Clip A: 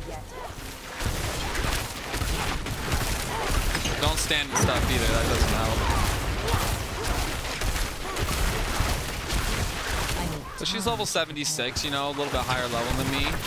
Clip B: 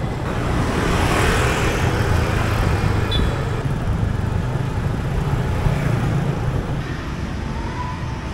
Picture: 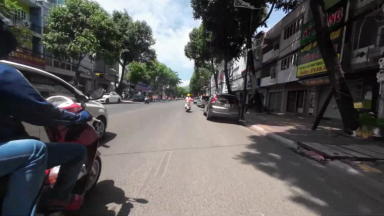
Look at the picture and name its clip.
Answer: B